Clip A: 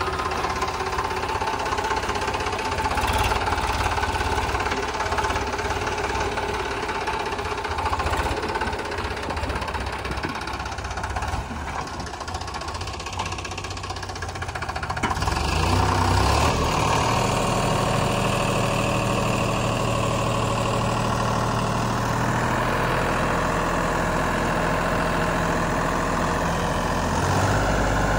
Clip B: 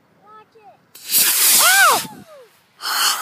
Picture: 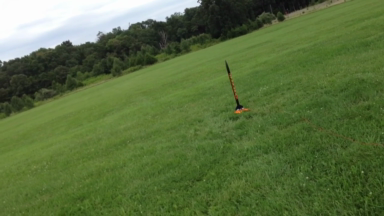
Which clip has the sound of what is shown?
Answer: B